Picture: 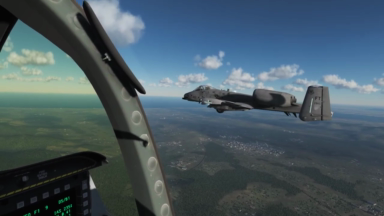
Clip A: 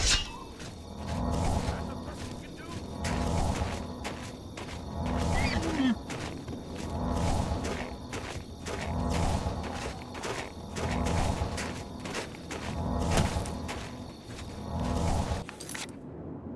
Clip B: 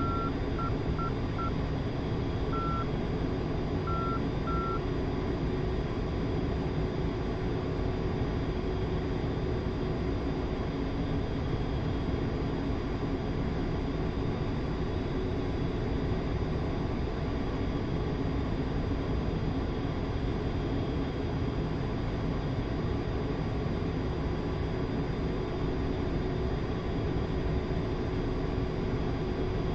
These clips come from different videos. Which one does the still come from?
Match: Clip B